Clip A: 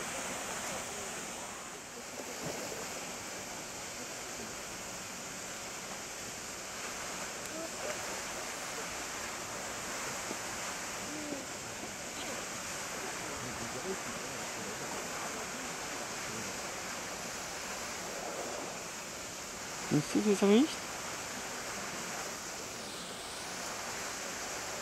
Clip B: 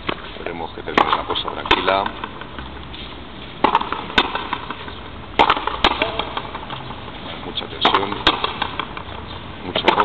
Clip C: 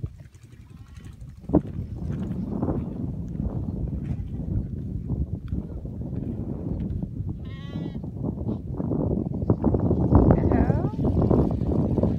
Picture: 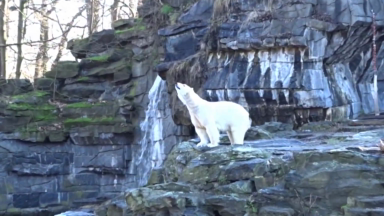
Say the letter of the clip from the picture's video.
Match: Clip A